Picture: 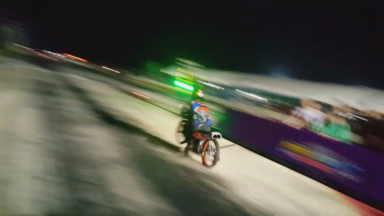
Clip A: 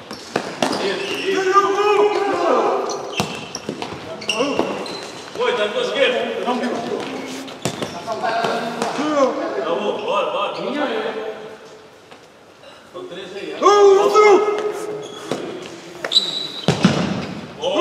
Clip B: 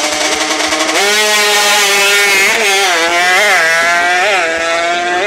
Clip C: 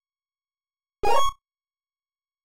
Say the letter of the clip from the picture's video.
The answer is B